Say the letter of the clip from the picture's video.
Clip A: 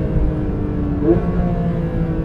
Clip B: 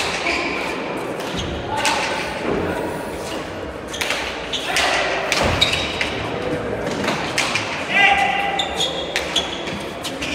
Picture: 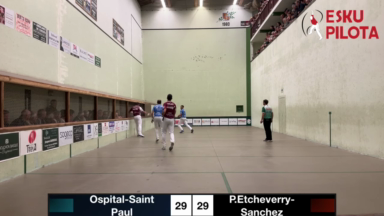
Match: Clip B